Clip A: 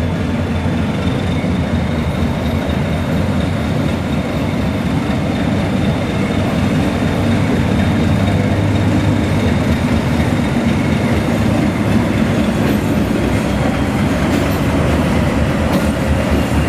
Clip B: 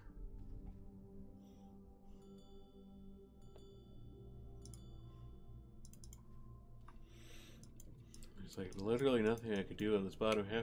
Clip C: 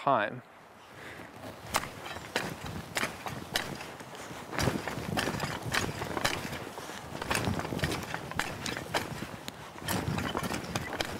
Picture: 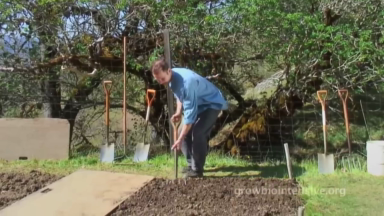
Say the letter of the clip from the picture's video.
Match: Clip C